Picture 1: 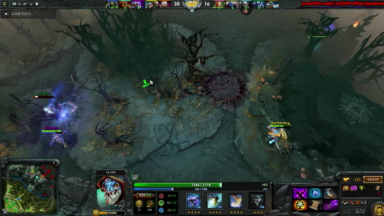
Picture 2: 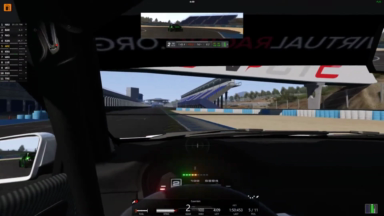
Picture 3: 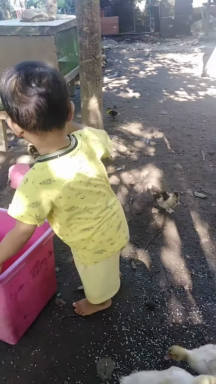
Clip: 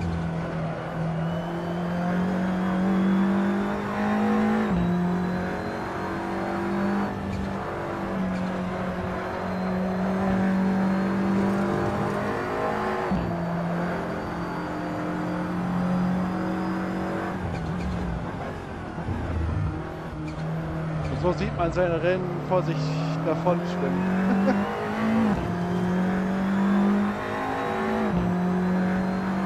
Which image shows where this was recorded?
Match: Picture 2